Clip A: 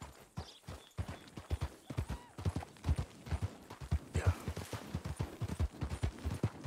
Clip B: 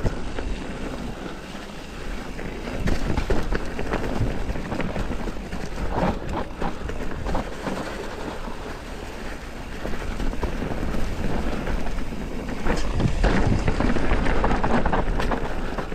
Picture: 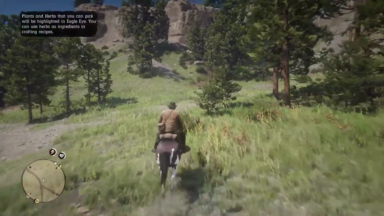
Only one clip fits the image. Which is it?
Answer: A